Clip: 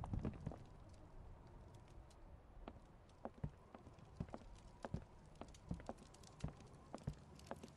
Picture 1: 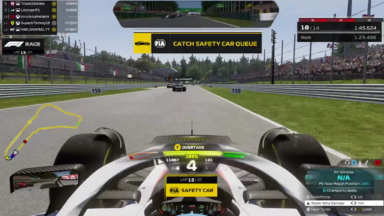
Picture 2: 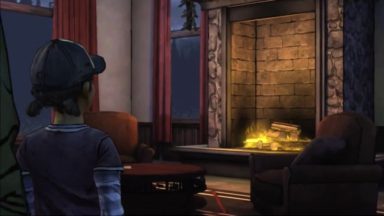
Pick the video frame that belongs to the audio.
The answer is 2